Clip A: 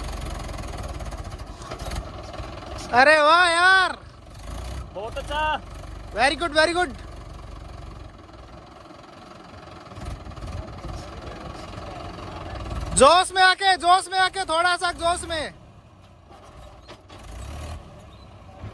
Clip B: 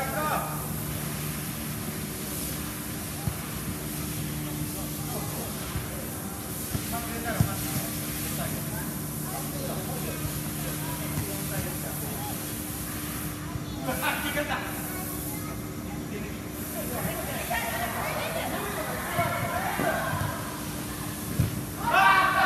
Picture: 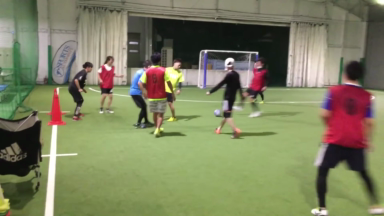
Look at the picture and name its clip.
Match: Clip B